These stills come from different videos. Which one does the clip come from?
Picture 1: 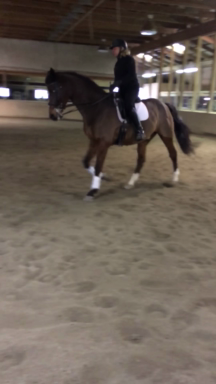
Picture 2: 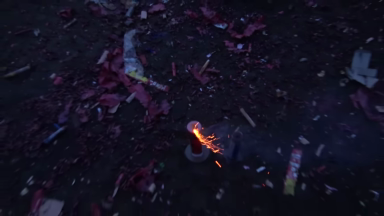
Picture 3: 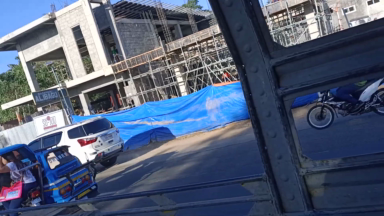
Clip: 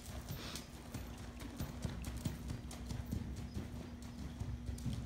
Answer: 1